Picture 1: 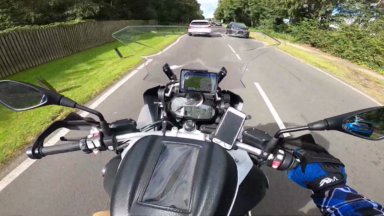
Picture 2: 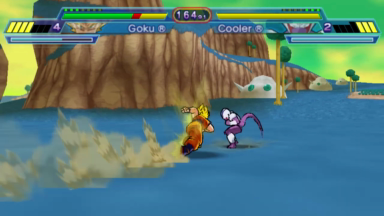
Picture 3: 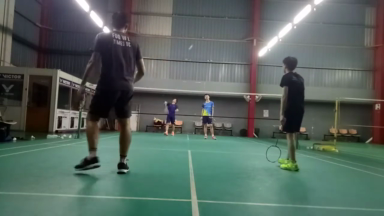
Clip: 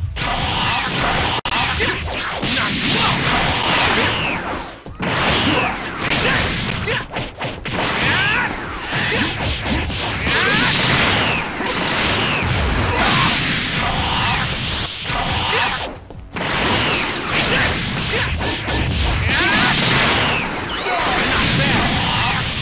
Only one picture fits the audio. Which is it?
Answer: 2